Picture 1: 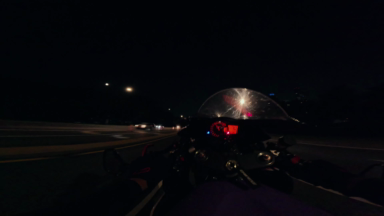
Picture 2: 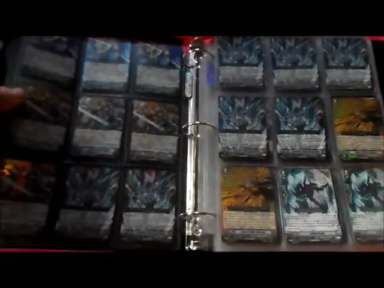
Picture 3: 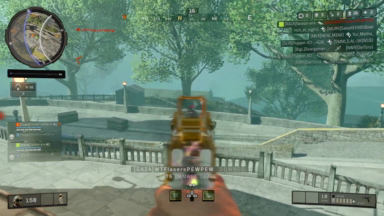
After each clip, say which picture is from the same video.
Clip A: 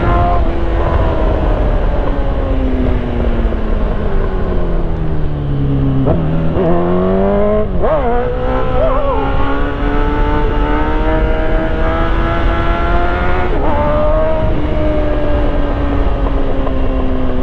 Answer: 1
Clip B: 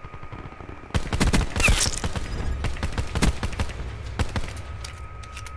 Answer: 3